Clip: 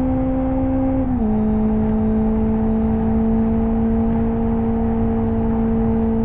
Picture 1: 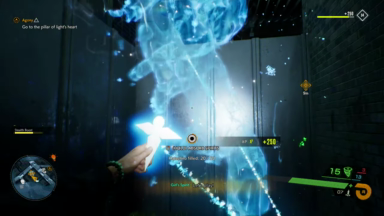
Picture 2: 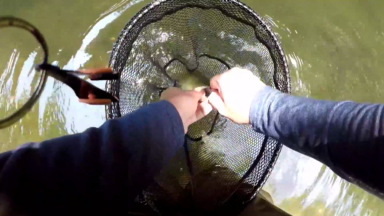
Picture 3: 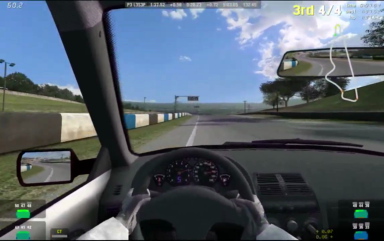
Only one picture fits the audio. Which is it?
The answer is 3